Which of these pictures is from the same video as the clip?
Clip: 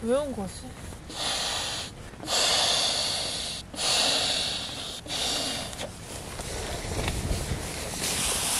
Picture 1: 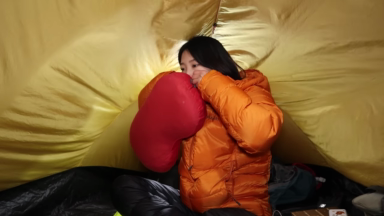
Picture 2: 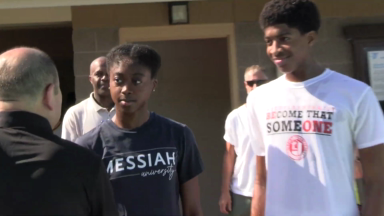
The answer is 1